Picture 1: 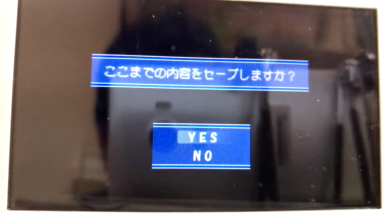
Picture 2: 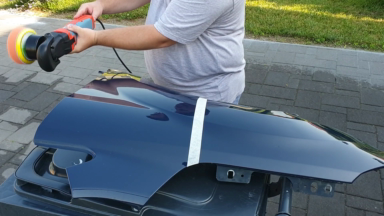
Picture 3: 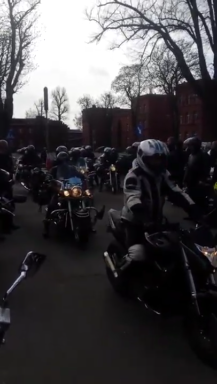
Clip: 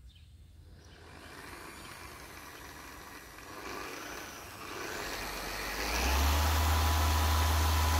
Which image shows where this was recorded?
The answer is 2